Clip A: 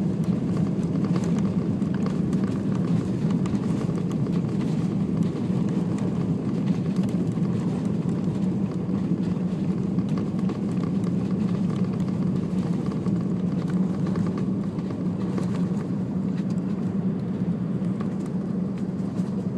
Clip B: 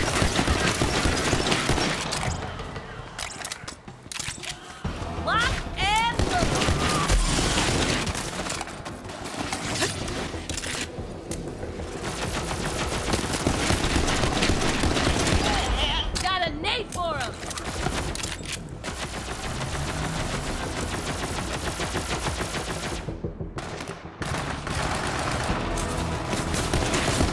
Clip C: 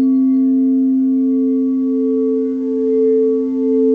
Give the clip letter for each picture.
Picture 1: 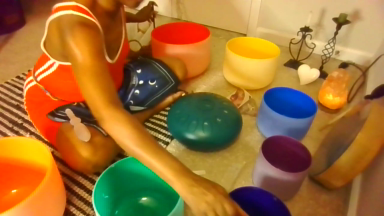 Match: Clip C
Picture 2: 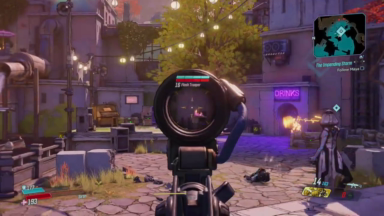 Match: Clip B